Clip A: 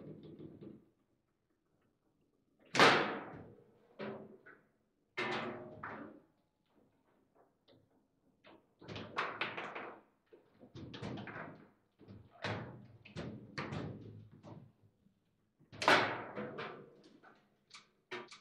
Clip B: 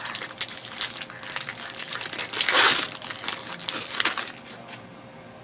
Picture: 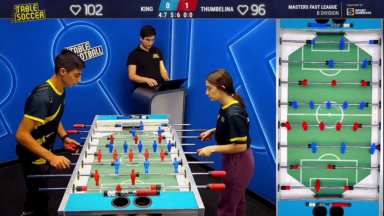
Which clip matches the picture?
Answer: A